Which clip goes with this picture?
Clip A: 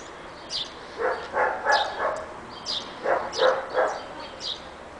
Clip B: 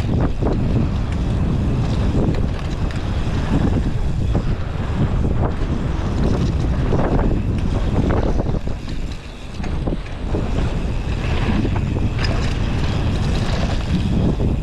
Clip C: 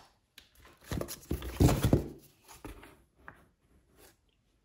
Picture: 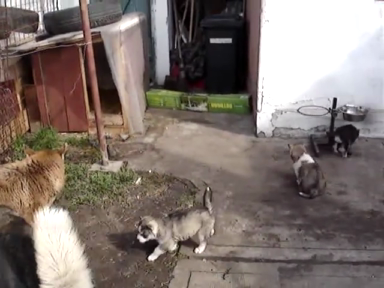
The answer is A